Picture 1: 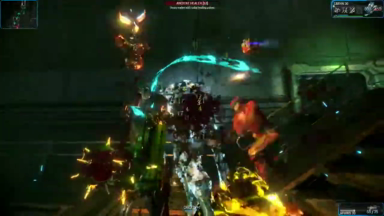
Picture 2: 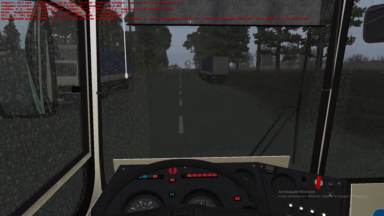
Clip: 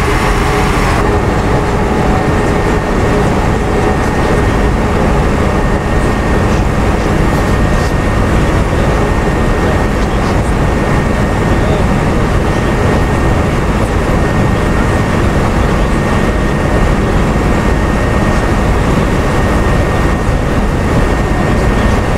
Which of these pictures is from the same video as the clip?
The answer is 2